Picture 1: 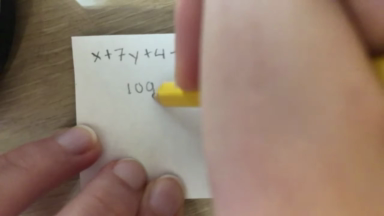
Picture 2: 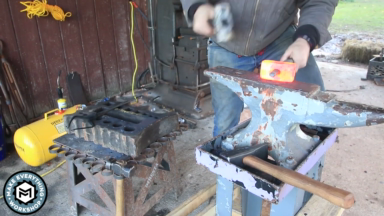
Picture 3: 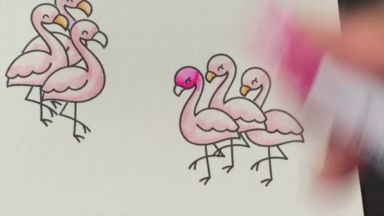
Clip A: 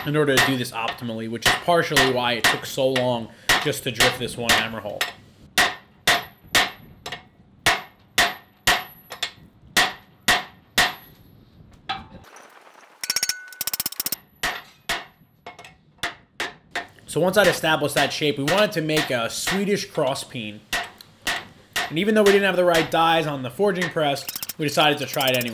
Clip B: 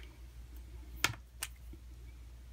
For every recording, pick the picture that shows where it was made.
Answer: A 2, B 3